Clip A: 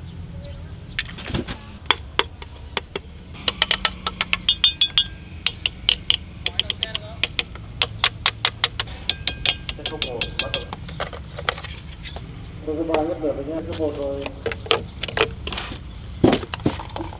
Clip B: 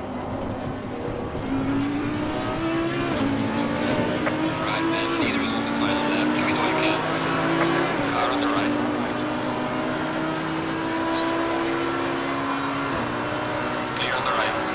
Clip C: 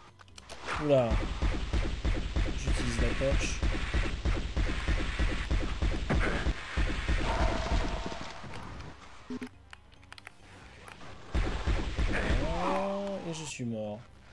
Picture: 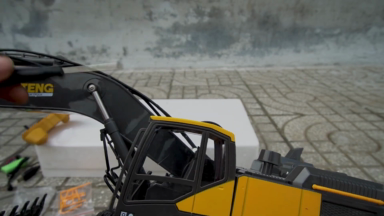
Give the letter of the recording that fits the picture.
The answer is A